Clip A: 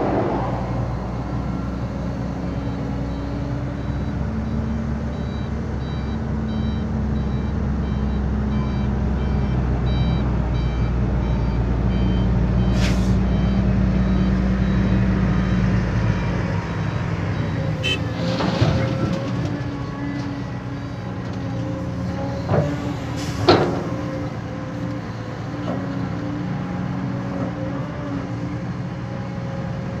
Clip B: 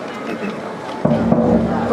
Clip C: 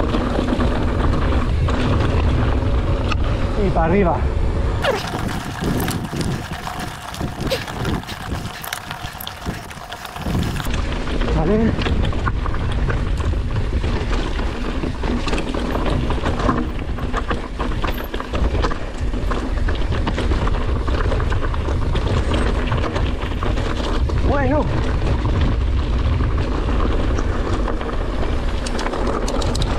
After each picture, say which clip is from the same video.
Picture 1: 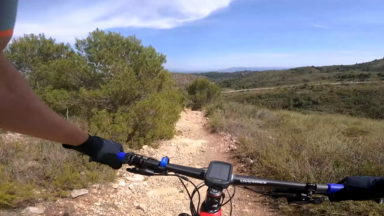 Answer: C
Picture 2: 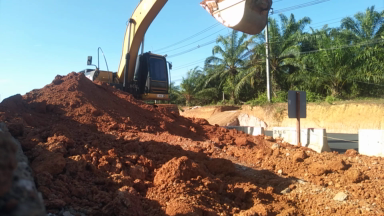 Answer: A